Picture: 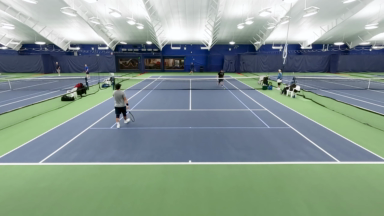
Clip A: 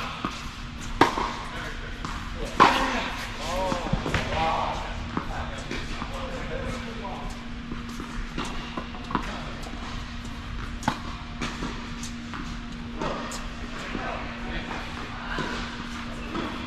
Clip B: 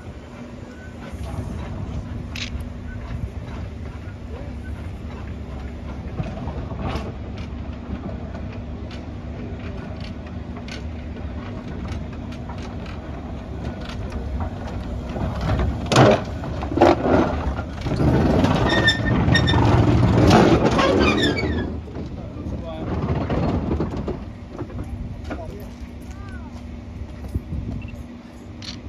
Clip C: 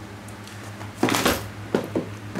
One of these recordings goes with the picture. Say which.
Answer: A